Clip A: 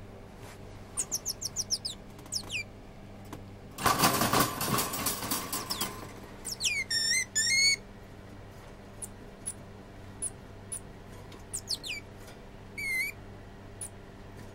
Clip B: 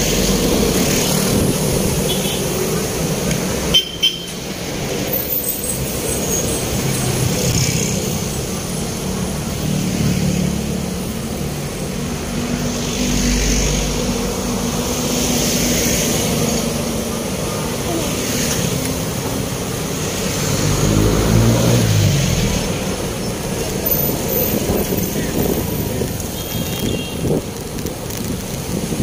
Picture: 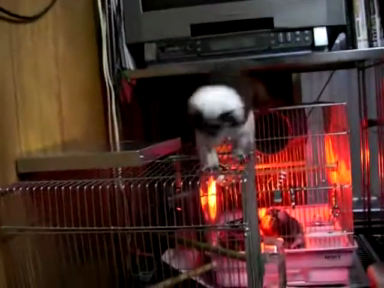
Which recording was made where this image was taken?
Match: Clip A